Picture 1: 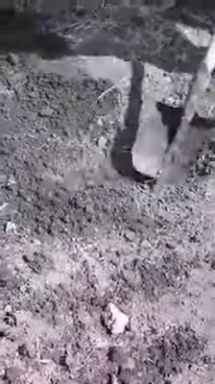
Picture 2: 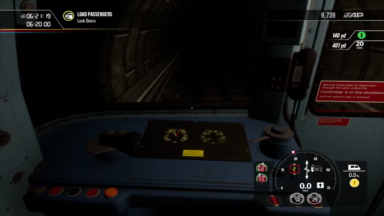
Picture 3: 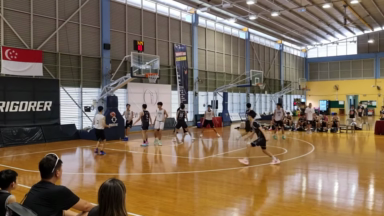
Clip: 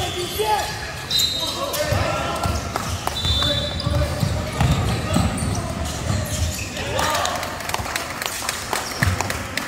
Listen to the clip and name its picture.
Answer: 3